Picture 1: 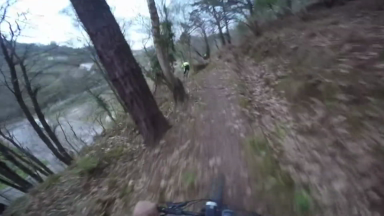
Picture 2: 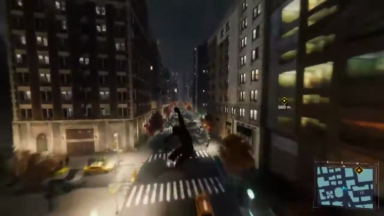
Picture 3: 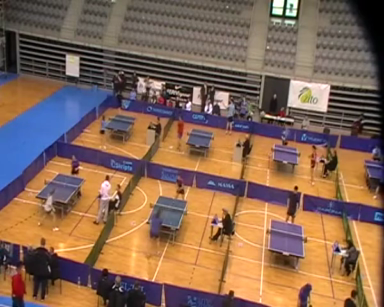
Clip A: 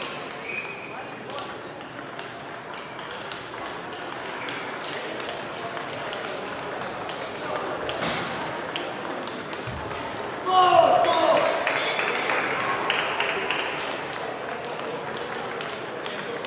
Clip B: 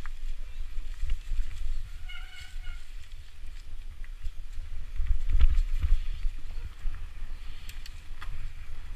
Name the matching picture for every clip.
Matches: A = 3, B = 1